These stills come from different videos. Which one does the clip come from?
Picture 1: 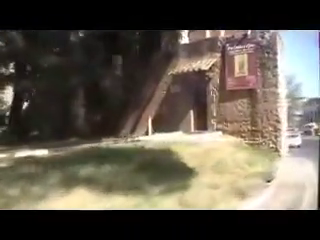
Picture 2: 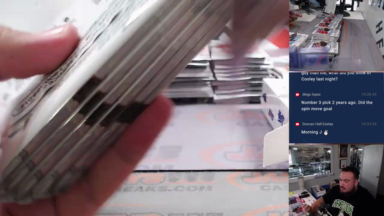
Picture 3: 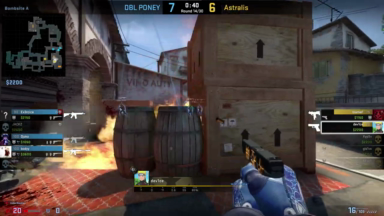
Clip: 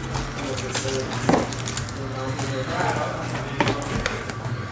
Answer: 2